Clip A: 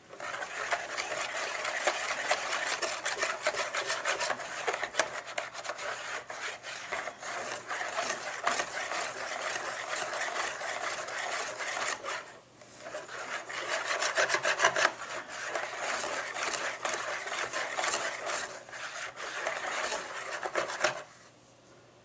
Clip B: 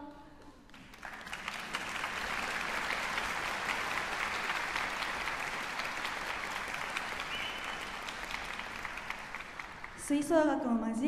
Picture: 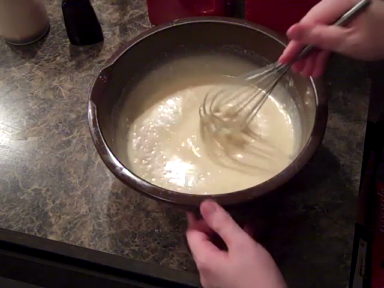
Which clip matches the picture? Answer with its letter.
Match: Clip A